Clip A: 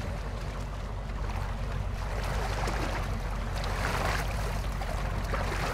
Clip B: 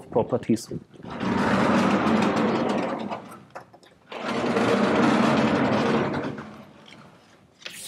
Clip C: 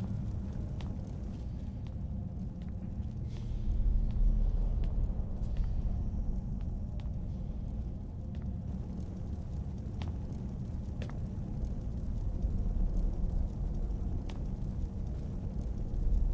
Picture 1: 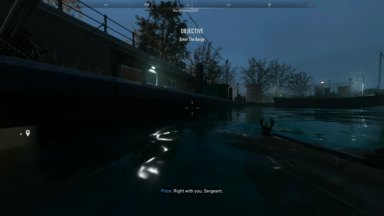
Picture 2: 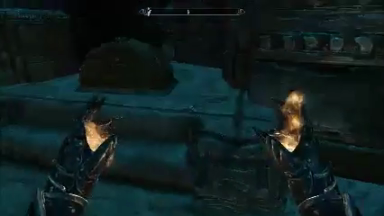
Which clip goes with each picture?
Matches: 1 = A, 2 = C